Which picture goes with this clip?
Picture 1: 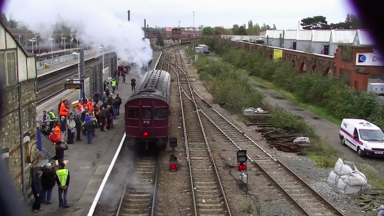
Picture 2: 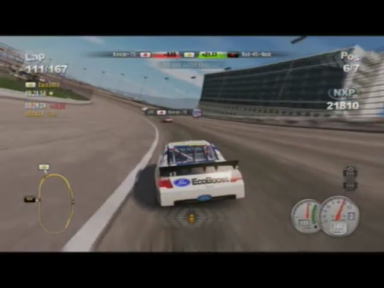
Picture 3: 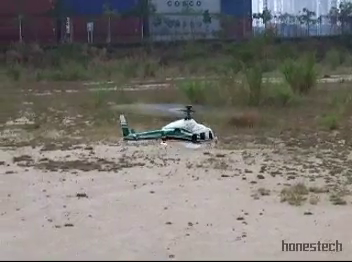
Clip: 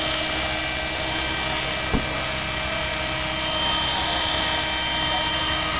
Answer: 3